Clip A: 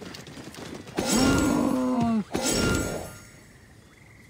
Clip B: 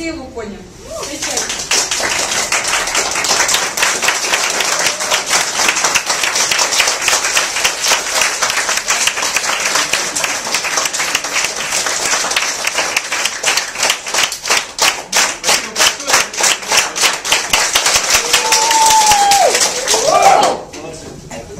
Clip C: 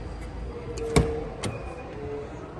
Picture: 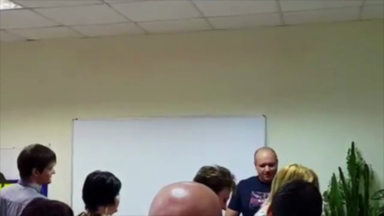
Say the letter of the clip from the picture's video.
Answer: B